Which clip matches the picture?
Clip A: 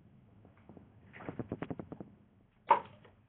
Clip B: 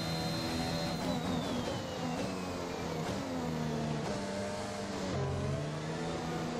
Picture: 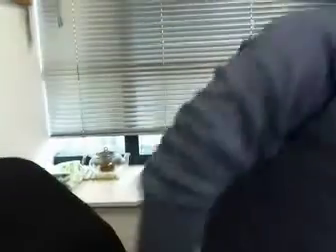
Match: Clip A